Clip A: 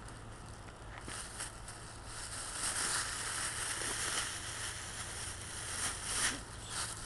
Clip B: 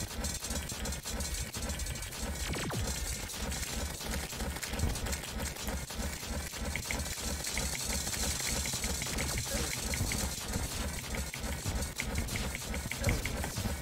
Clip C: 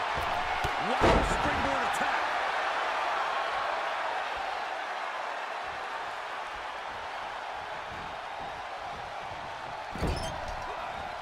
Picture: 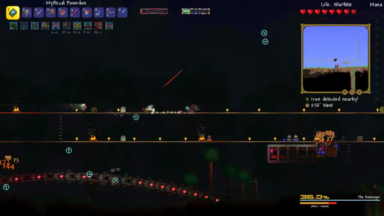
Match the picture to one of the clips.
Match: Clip B